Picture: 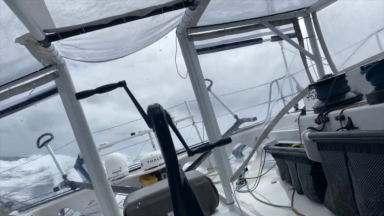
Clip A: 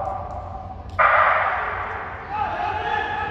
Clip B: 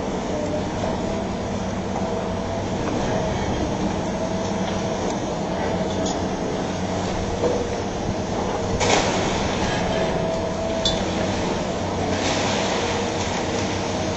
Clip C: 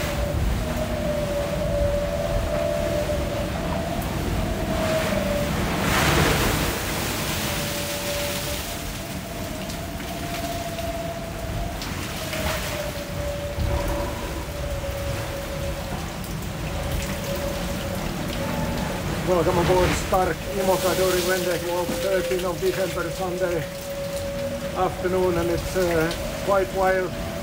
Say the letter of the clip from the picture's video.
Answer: C